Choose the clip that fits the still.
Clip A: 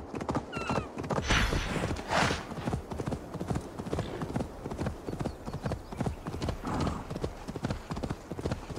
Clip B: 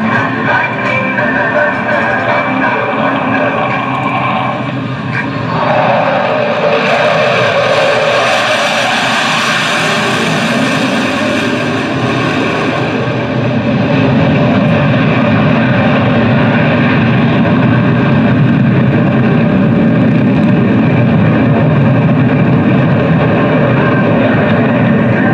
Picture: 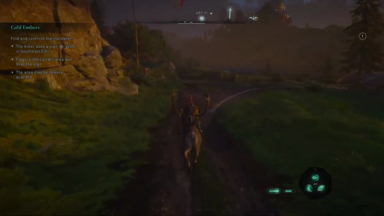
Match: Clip A